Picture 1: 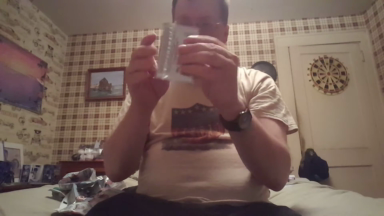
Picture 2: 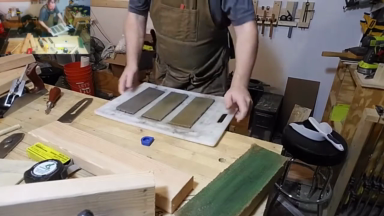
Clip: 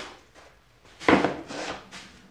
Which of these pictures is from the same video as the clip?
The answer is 2